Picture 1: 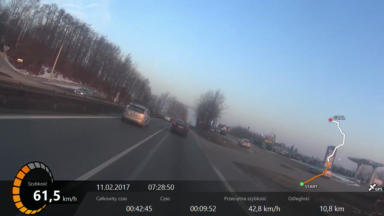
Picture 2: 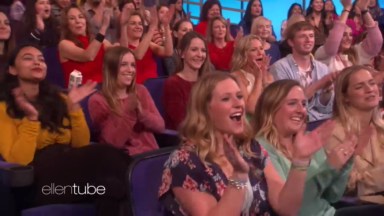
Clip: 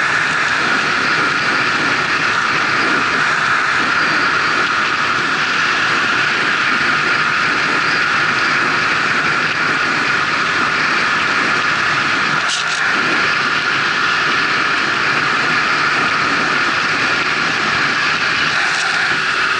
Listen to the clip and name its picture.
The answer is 1